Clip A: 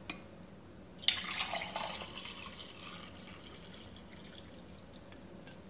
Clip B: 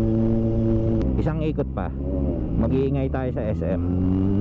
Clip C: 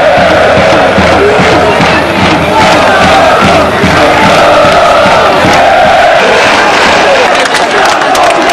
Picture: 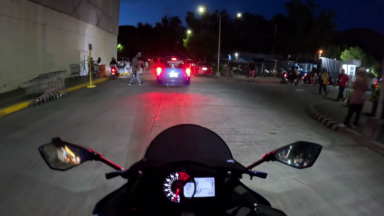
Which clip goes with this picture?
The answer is B